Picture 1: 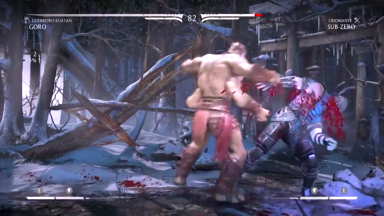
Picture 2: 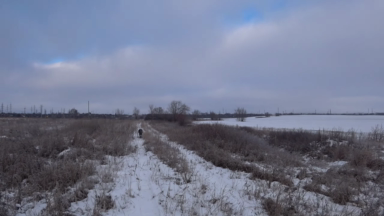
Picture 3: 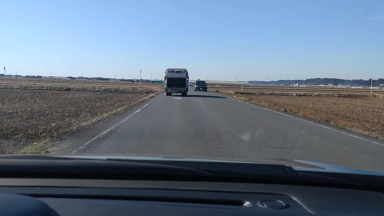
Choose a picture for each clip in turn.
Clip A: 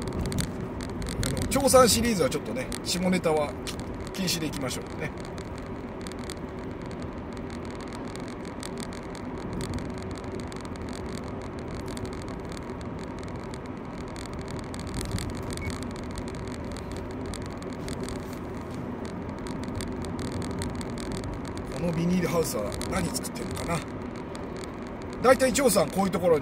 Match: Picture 3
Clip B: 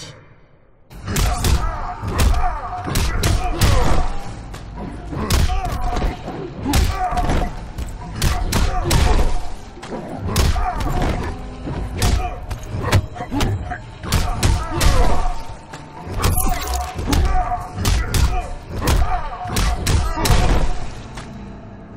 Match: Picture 1